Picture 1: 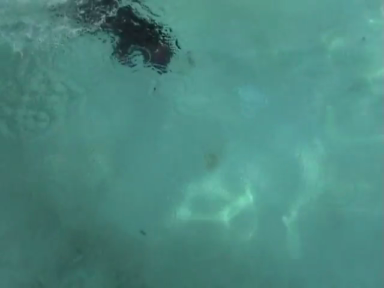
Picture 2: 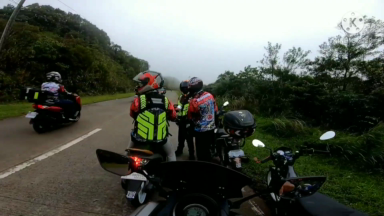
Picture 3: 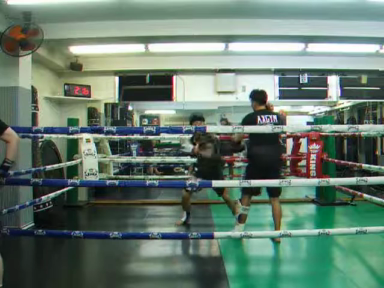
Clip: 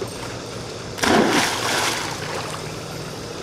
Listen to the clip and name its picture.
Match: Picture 1